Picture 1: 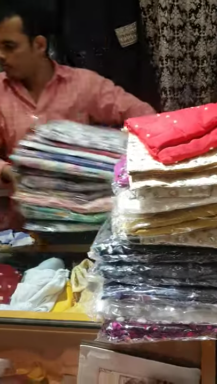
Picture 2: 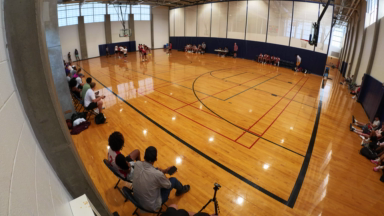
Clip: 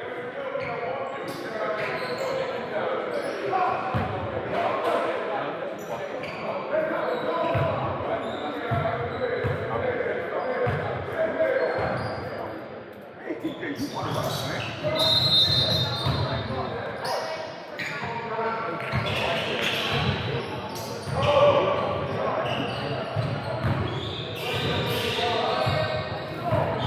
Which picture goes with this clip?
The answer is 2